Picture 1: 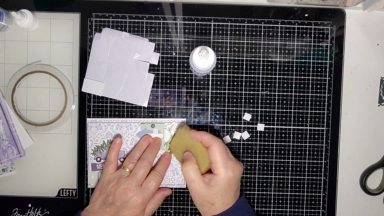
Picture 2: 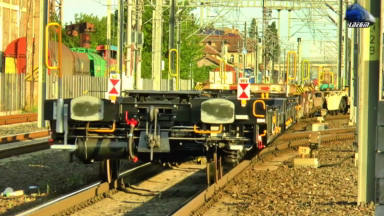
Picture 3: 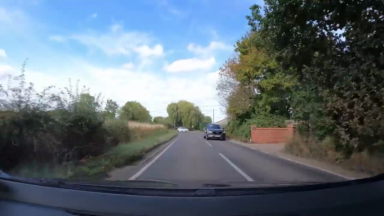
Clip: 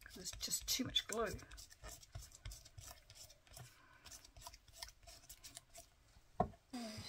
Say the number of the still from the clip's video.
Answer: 1